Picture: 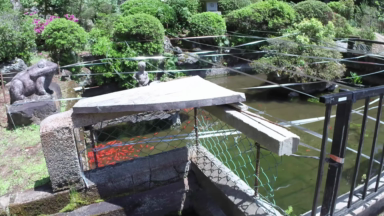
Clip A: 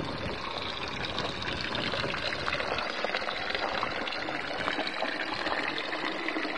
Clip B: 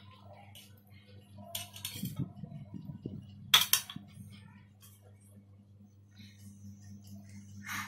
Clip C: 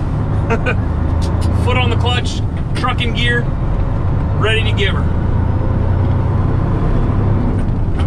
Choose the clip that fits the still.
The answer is A